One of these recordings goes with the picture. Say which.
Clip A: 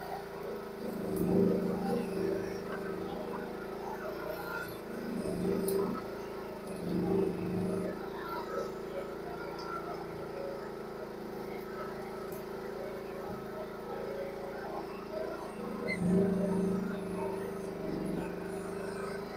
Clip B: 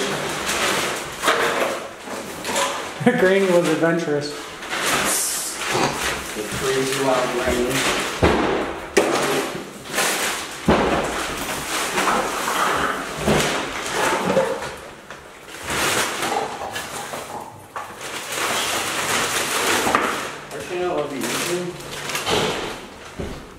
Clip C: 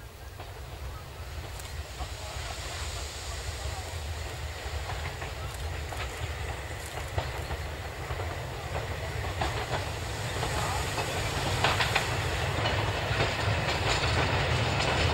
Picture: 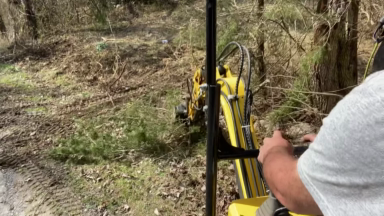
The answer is A